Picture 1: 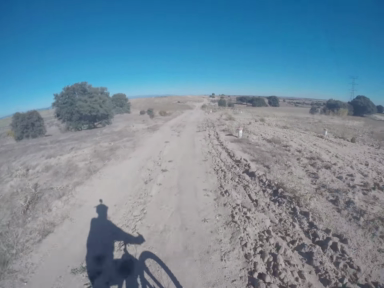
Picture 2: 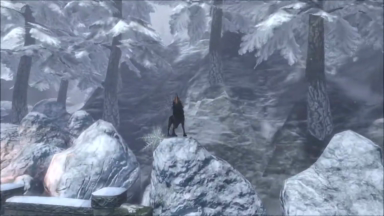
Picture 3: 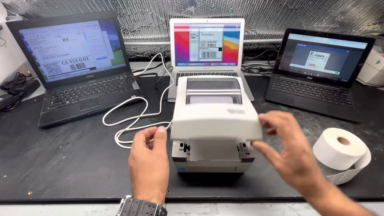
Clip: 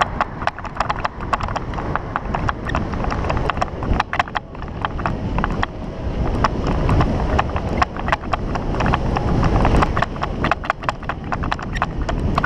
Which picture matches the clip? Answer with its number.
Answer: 1